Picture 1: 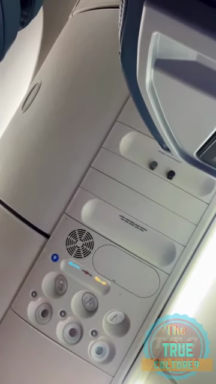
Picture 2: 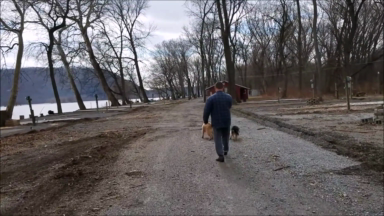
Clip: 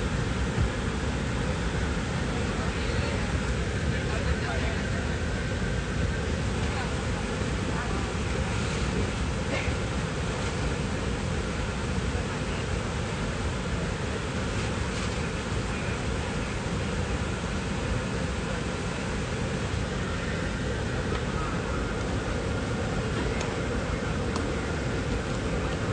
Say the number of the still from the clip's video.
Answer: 1